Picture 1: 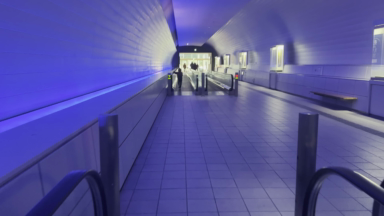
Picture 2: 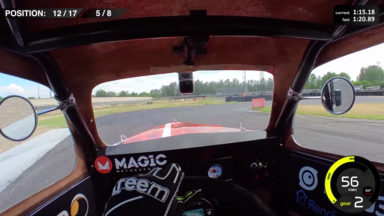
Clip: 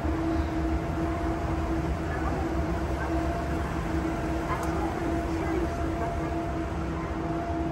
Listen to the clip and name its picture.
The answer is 1